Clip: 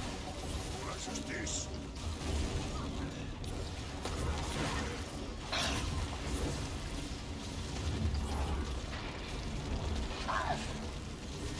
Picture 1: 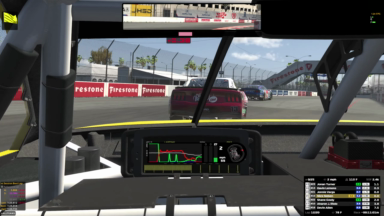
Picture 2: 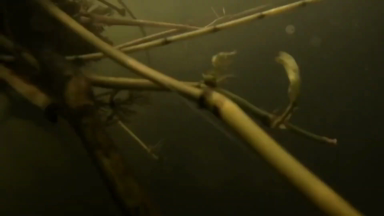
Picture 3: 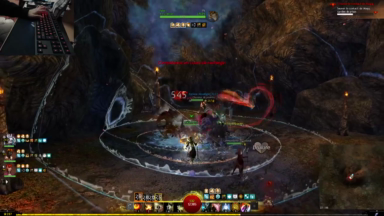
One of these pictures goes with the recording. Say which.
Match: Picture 3